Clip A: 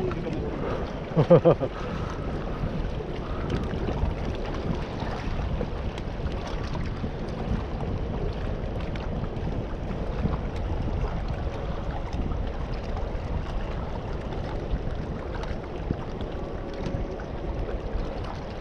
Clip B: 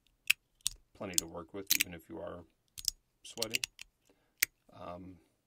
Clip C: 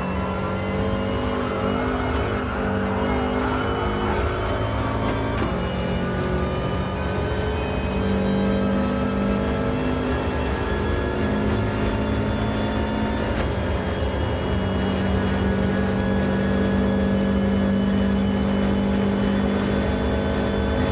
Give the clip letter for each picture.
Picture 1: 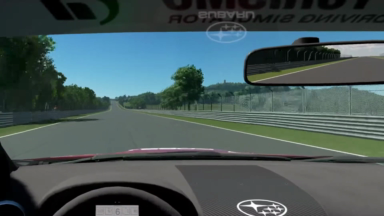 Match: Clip C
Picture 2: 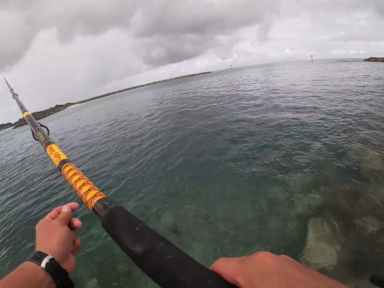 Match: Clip A